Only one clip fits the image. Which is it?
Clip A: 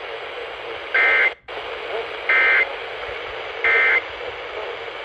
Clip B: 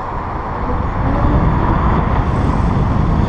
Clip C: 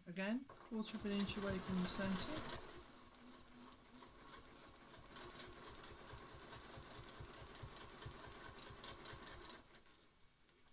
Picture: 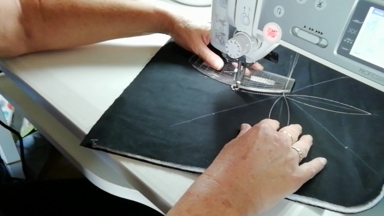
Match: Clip C